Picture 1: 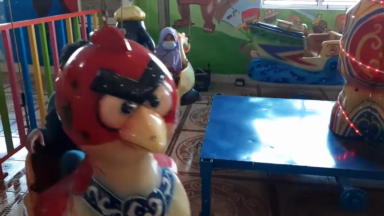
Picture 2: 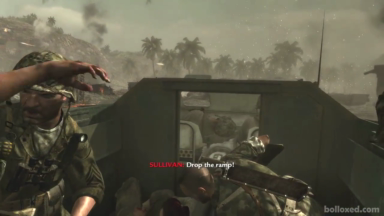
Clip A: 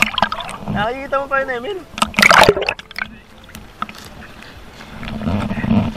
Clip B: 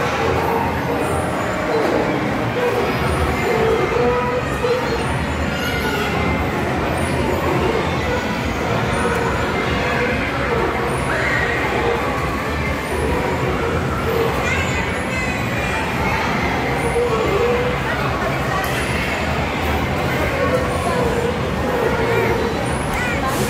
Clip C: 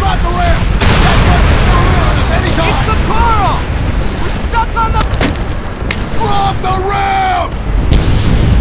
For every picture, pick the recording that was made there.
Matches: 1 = B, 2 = C